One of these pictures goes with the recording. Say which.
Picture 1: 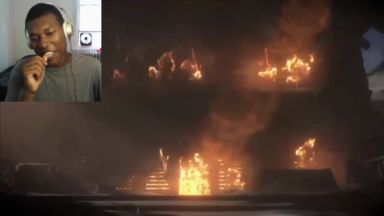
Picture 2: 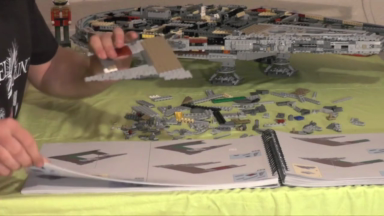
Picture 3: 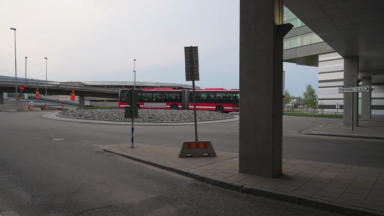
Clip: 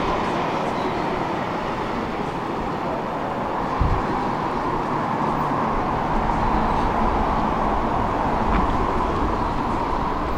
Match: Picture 3